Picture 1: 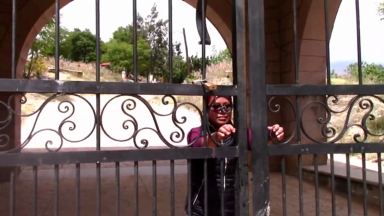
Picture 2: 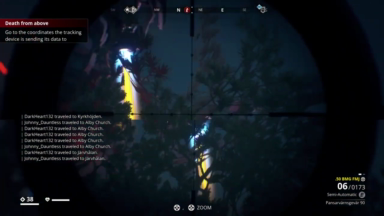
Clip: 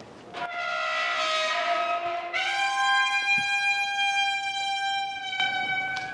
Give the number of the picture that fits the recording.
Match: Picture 1